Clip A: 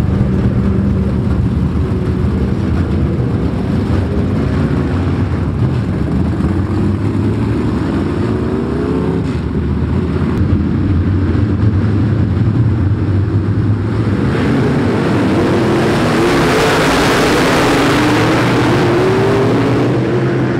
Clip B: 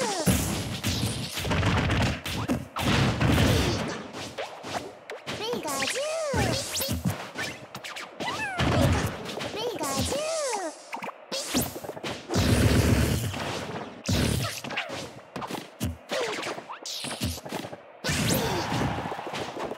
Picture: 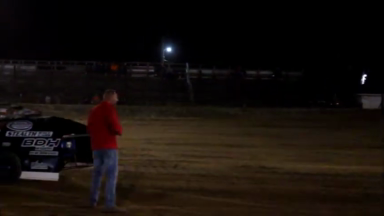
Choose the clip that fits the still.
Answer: A